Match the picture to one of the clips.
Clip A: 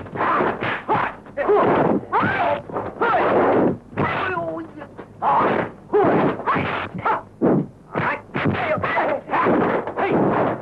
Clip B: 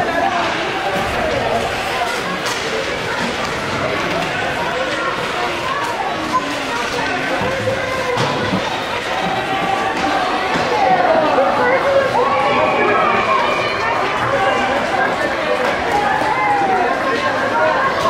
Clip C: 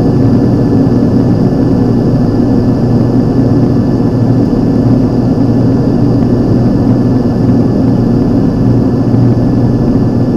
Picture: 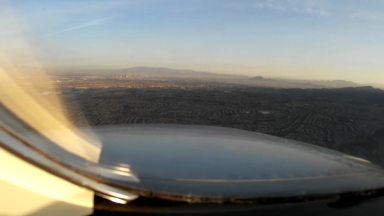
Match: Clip C